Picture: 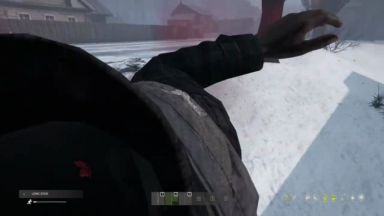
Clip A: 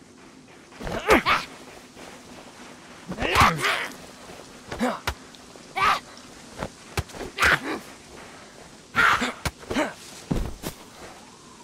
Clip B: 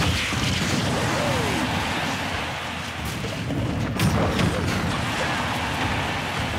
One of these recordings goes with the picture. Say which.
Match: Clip A